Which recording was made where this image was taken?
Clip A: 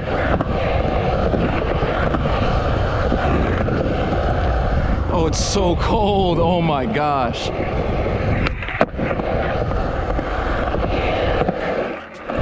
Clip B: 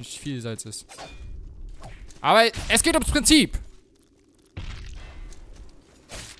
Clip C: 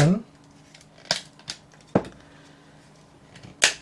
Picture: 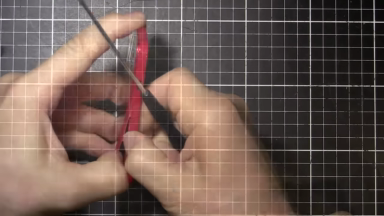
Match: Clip C